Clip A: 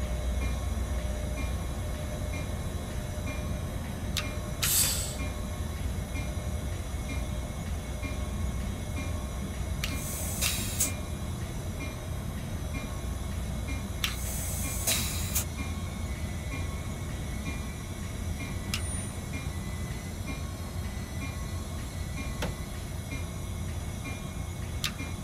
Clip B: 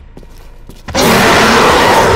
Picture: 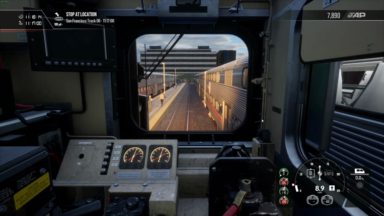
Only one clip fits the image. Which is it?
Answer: A